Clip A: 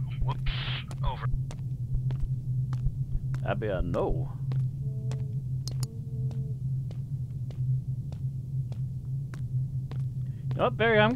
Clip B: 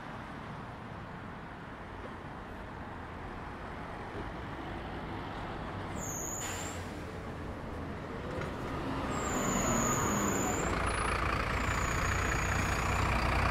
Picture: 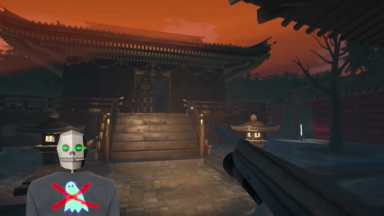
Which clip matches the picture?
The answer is A